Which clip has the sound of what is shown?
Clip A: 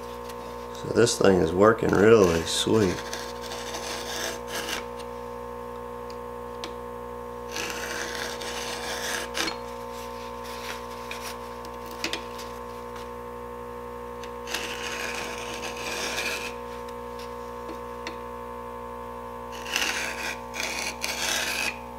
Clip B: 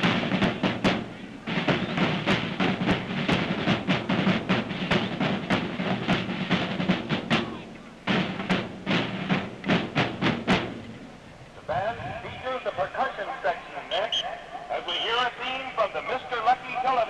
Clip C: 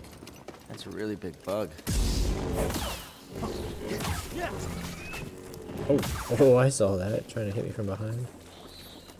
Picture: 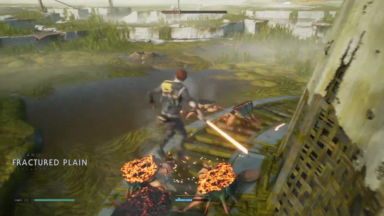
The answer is C